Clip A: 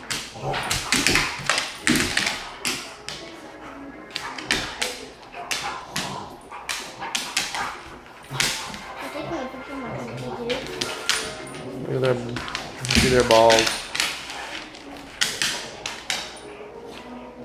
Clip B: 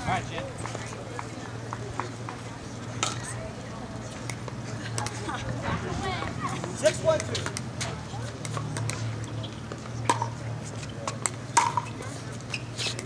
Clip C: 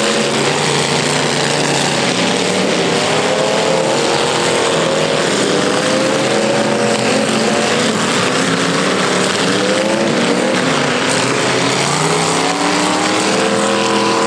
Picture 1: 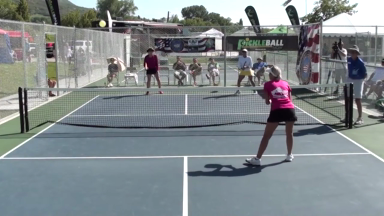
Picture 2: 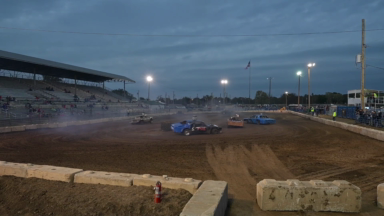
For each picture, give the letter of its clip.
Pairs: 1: B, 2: C